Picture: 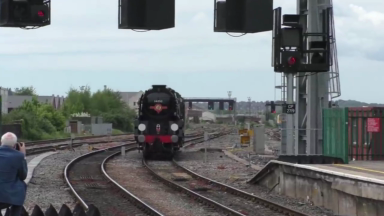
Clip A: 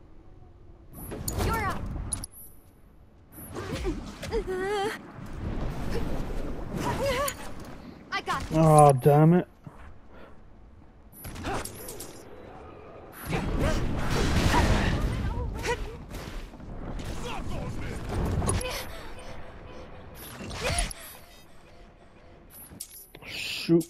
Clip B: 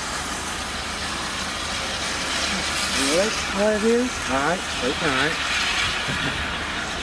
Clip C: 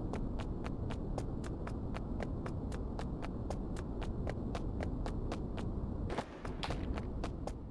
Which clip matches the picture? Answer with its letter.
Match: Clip B